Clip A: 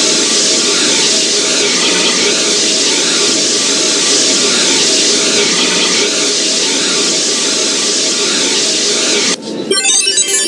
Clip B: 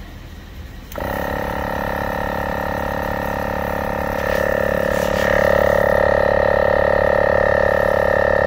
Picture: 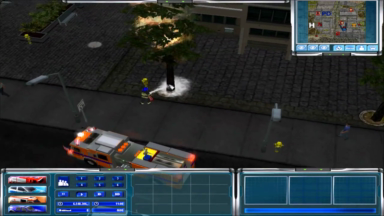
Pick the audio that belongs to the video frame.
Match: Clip A